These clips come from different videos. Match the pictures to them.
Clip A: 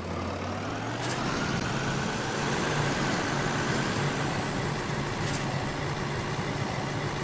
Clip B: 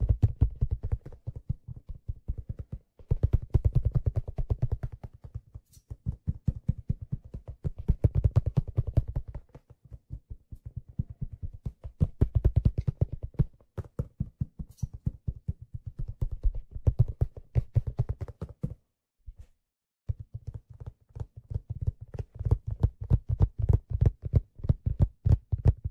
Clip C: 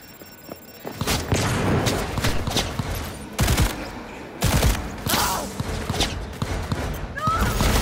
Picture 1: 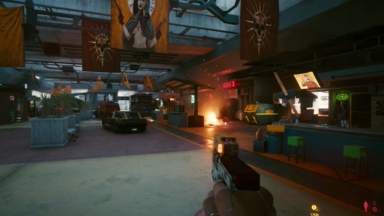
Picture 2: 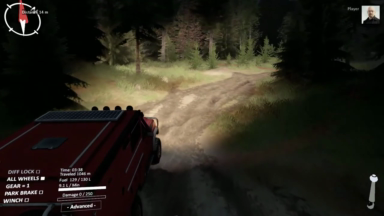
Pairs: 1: C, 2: A